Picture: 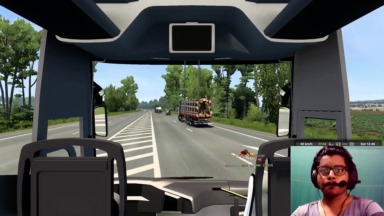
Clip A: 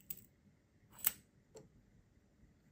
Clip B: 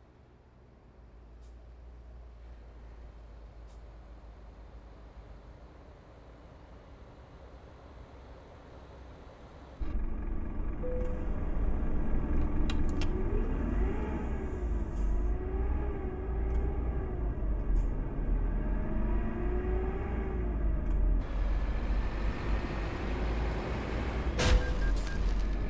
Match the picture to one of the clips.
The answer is B